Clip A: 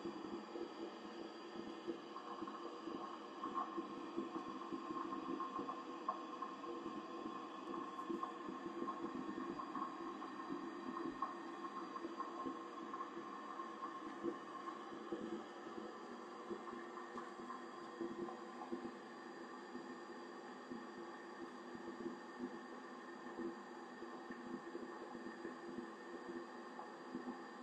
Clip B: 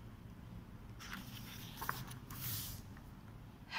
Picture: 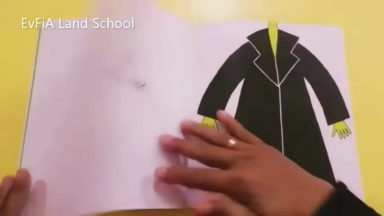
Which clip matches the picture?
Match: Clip B